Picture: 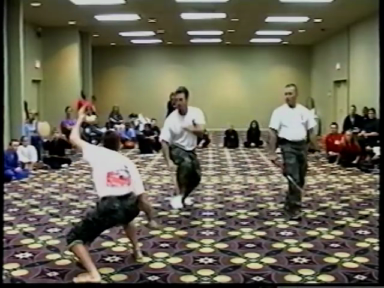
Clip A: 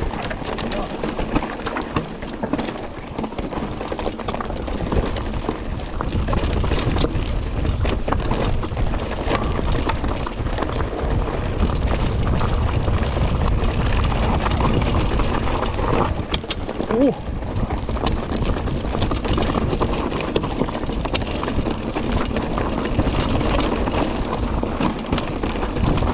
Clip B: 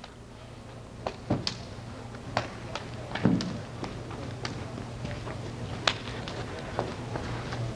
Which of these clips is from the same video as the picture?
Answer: B